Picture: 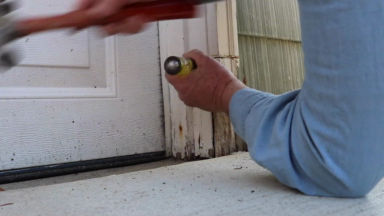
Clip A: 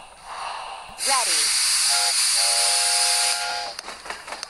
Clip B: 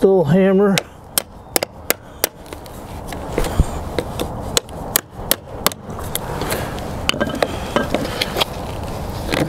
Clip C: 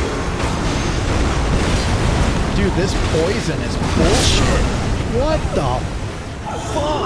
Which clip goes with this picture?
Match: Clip B